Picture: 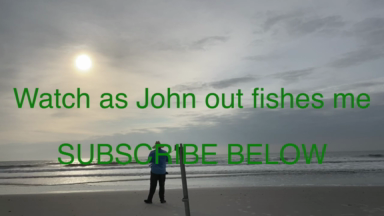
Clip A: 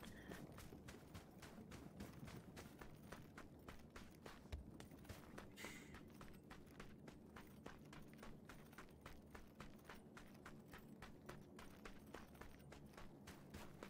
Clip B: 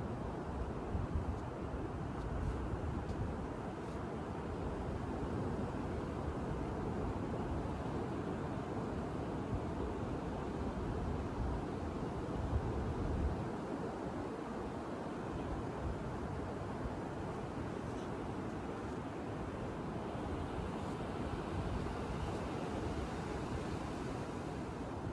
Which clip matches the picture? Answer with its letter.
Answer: B